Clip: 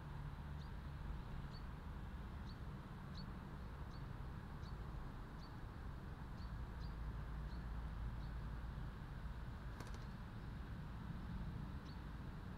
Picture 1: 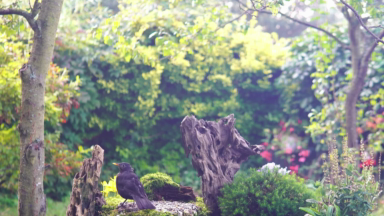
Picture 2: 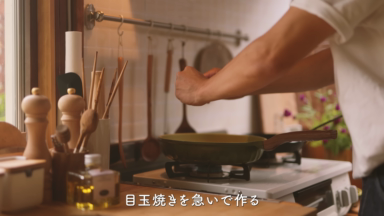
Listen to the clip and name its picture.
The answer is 1